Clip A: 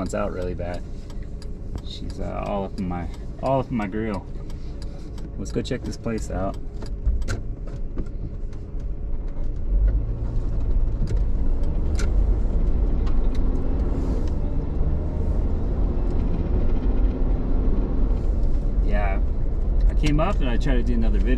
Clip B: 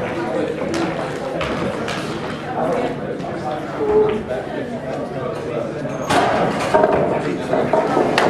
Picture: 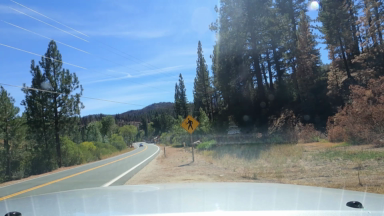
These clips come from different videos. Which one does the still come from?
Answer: A